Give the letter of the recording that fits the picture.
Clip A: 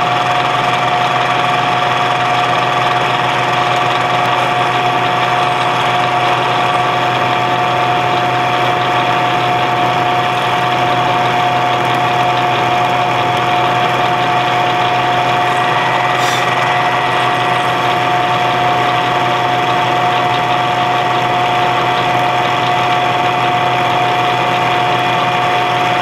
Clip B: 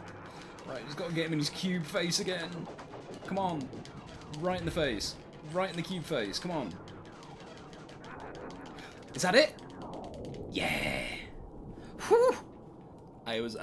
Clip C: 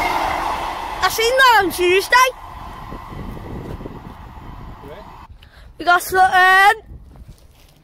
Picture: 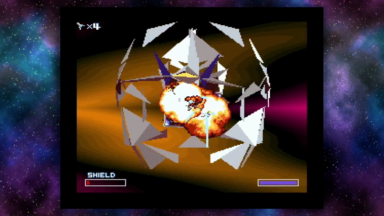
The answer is B